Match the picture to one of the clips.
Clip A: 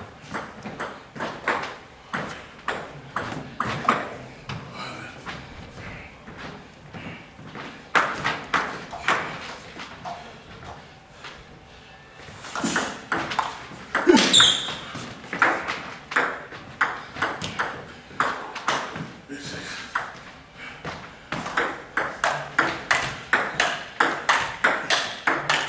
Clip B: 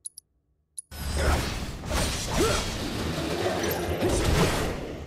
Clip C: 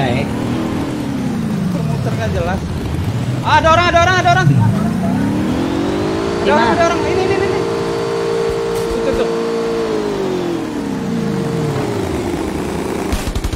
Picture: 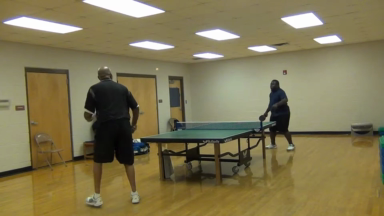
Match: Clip A